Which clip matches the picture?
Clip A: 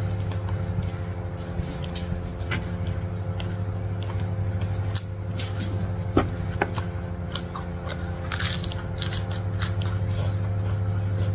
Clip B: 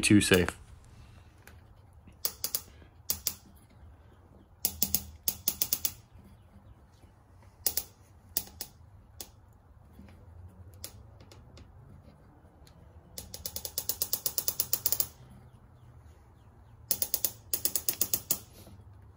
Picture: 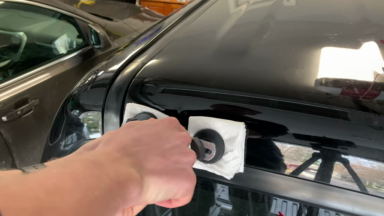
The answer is B